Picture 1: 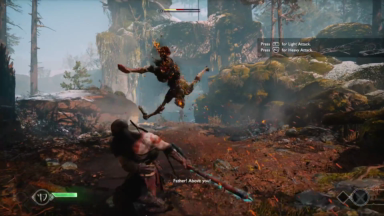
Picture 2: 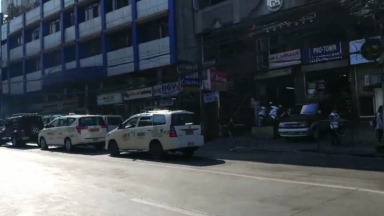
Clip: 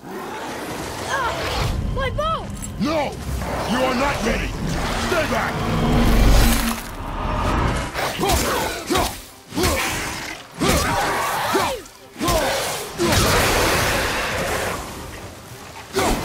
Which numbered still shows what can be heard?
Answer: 1